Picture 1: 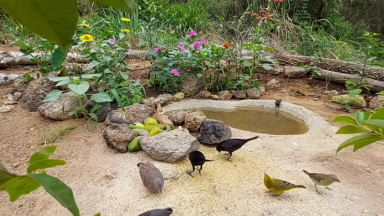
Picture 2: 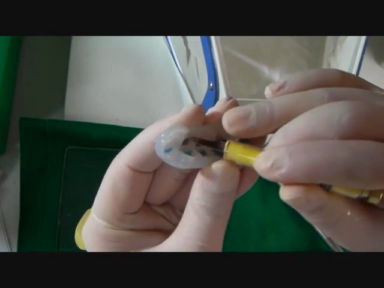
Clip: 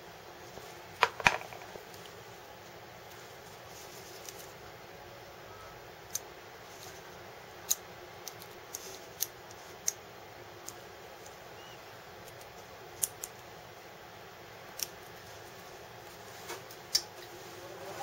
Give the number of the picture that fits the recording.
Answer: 2